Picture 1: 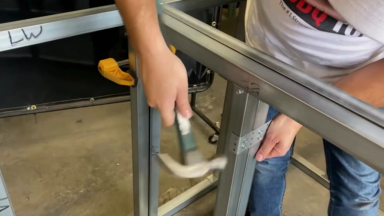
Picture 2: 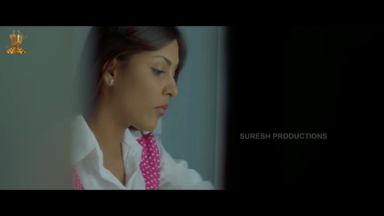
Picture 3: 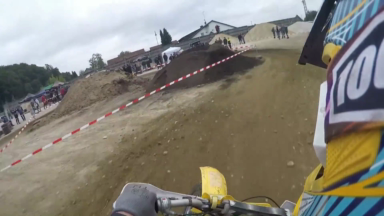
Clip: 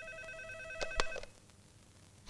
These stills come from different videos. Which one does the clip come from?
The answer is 2